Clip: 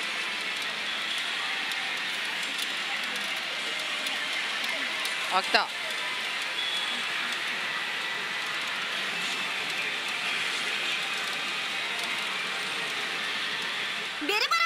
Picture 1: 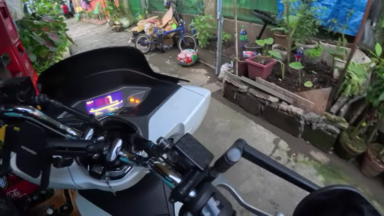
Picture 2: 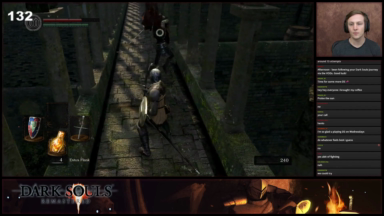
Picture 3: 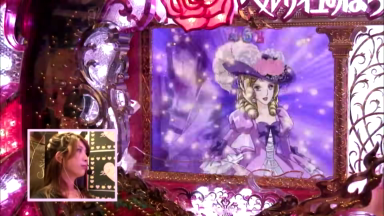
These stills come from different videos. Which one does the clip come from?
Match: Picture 3